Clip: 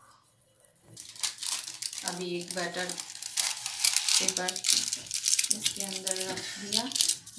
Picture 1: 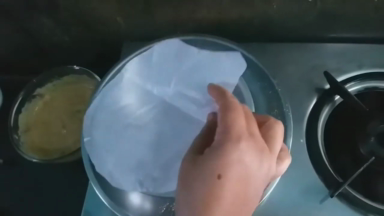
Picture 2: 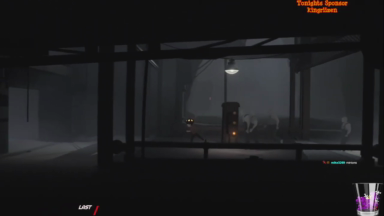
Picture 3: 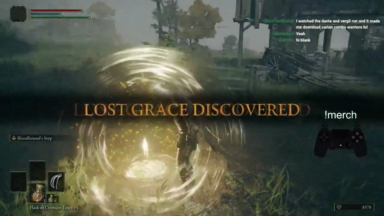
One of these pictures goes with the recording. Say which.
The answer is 1